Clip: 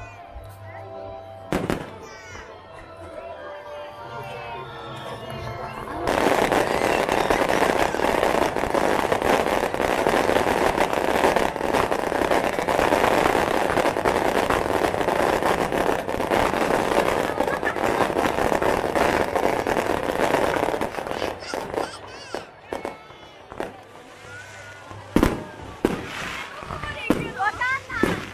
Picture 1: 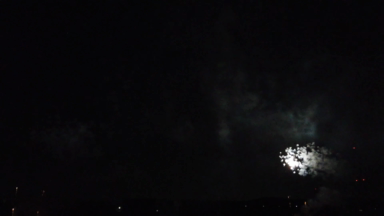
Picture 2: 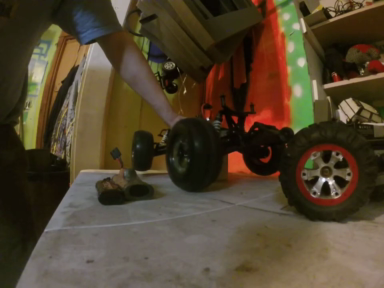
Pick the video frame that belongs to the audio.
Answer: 1